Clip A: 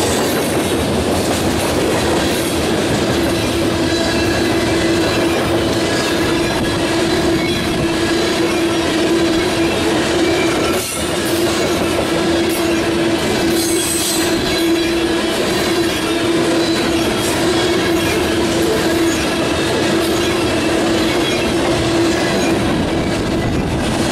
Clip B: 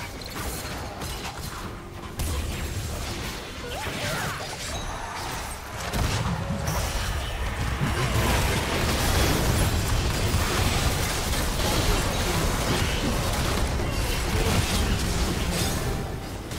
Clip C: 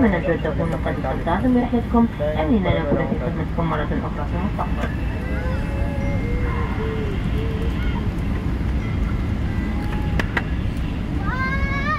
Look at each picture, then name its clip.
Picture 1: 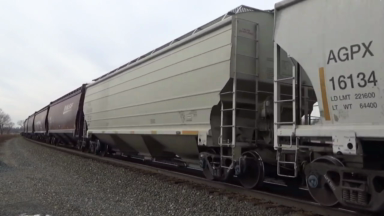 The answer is A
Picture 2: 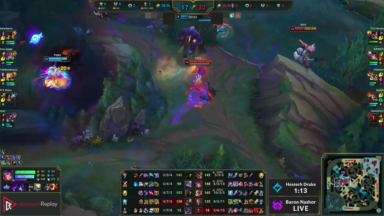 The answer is B